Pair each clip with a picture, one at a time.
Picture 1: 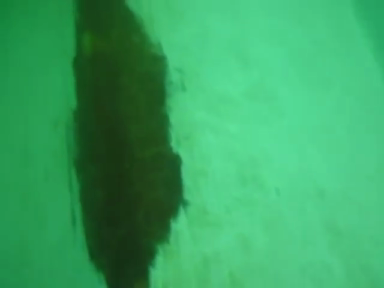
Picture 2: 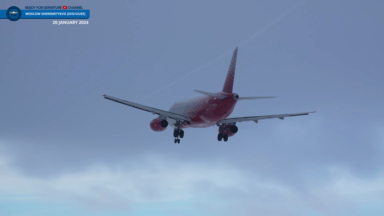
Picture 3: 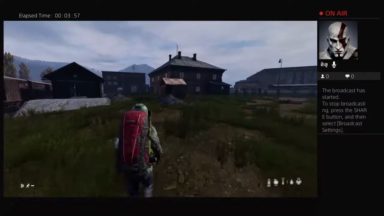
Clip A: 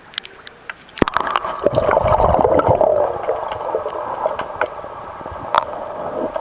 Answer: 1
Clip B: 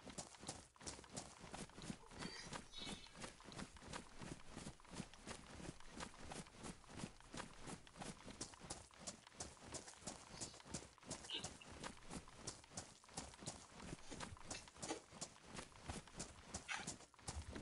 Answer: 3